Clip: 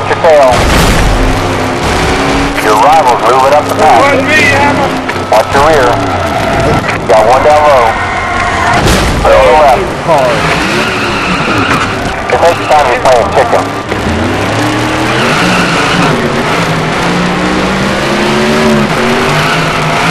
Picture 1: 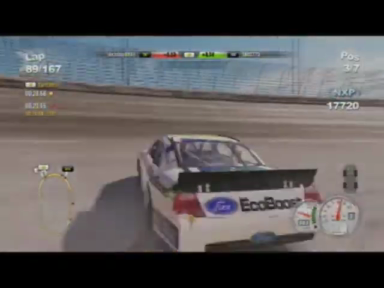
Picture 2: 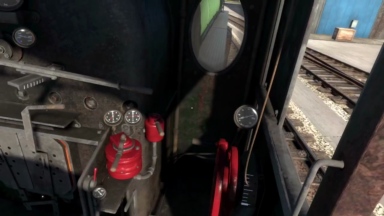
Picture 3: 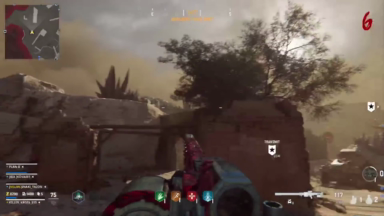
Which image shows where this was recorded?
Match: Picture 1